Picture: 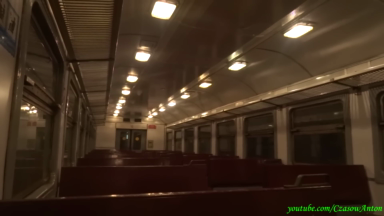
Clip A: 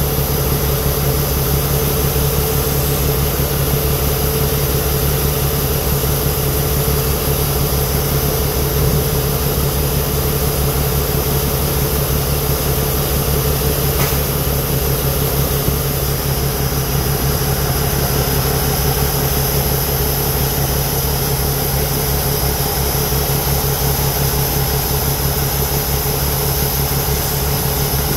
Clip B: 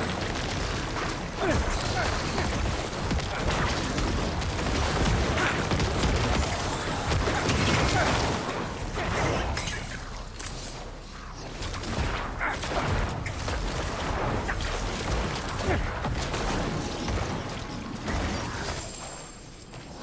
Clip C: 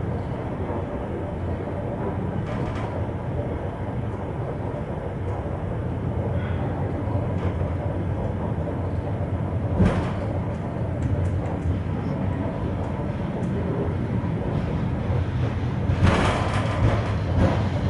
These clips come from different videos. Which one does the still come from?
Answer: C